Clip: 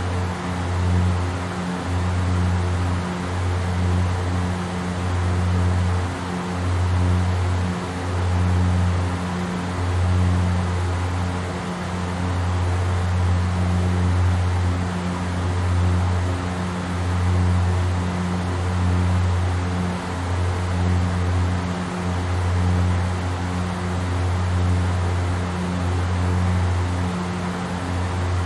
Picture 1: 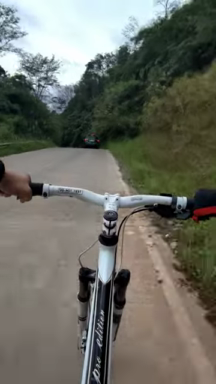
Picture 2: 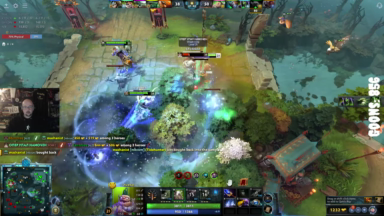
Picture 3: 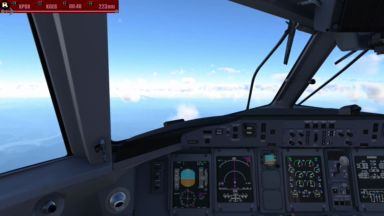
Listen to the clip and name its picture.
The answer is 3